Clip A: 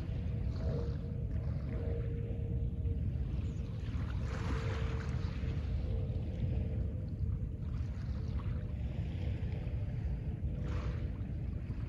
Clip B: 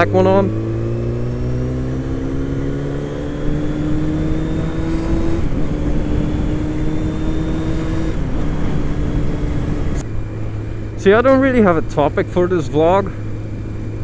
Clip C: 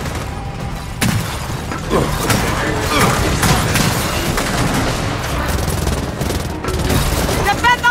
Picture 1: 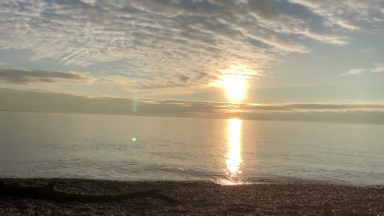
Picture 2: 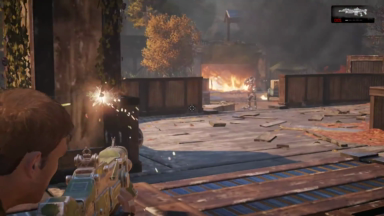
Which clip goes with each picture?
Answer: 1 A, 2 C